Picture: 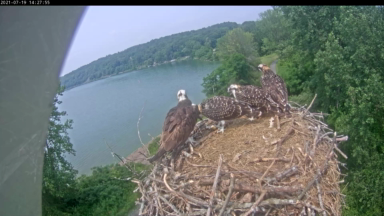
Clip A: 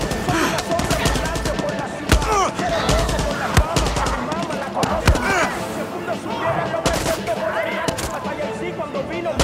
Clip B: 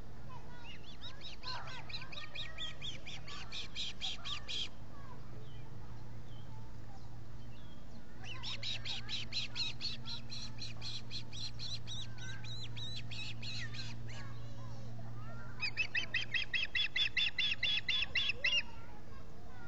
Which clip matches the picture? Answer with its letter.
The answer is B